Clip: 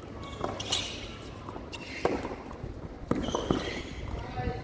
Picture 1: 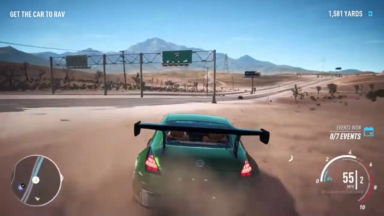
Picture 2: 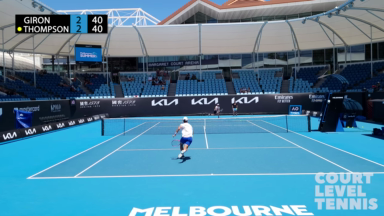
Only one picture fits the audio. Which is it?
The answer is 2